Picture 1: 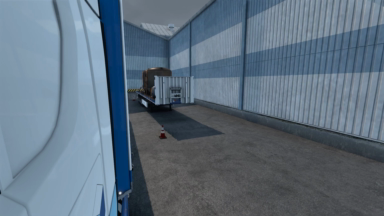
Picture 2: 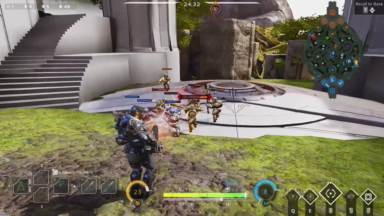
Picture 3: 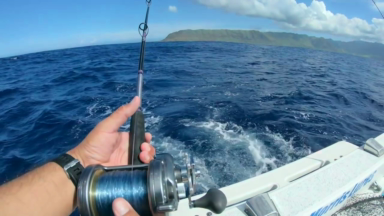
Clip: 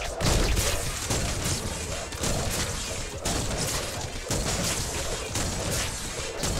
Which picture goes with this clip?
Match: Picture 2